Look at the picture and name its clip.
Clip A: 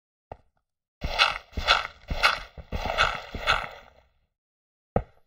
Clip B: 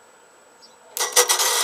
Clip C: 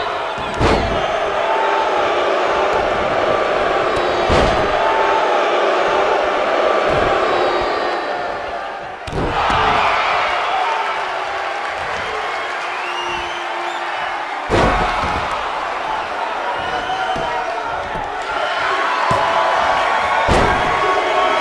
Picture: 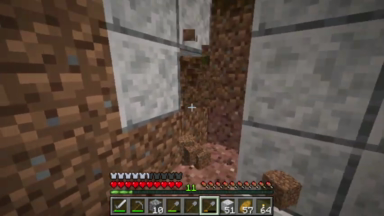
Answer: A